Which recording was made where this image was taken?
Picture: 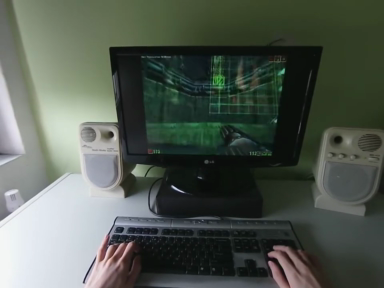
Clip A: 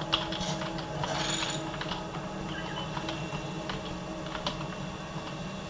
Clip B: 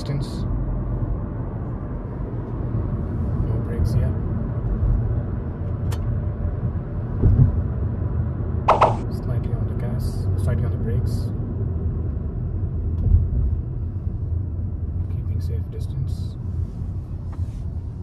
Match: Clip A